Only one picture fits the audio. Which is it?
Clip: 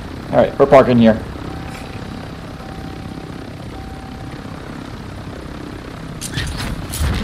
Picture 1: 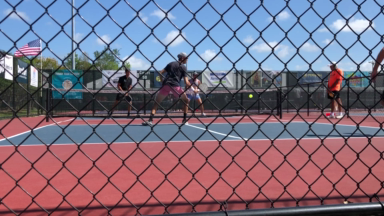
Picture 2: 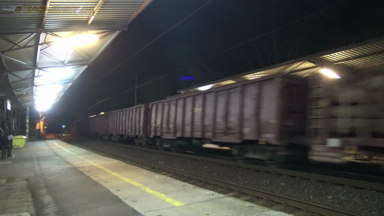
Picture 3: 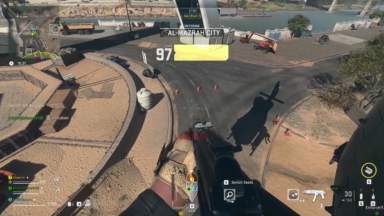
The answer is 3